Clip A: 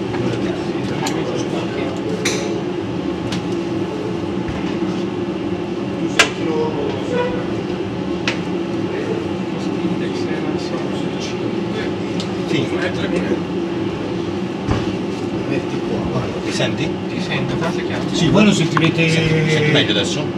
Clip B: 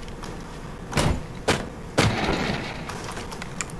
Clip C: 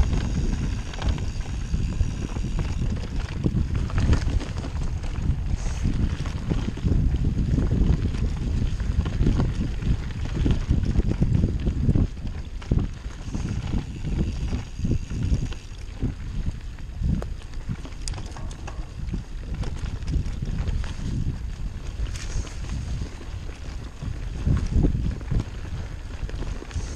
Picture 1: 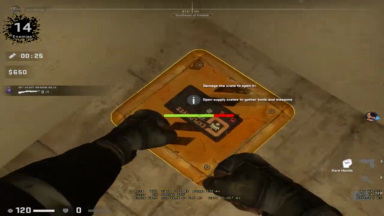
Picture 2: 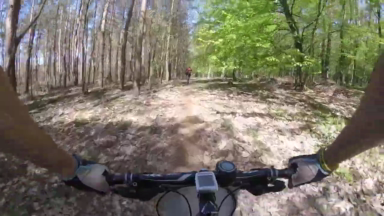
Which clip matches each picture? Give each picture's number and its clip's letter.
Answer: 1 B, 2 C